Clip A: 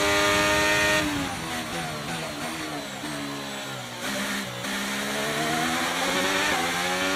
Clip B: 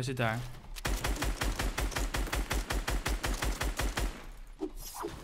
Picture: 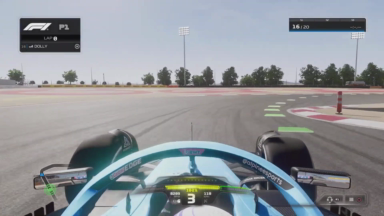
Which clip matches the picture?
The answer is A